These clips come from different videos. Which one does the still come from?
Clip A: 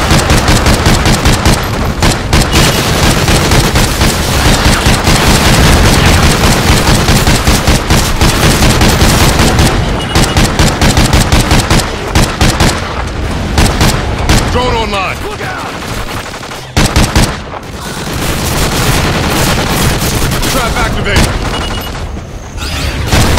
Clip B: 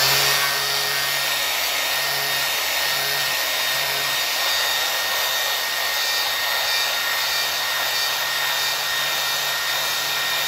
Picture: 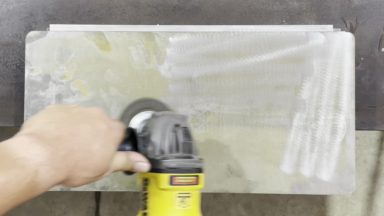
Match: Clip B